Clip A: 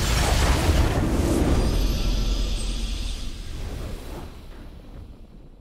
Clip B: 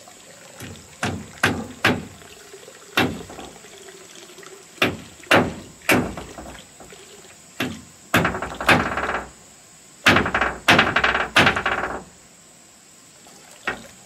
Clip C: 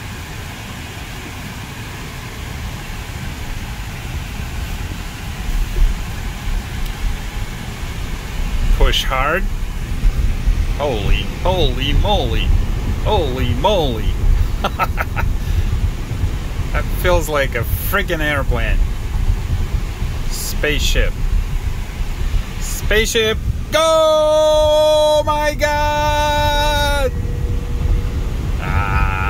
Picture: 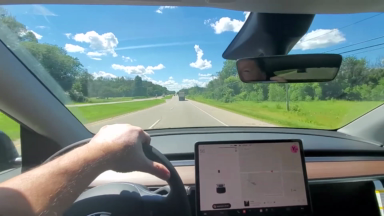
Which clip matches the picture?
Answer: C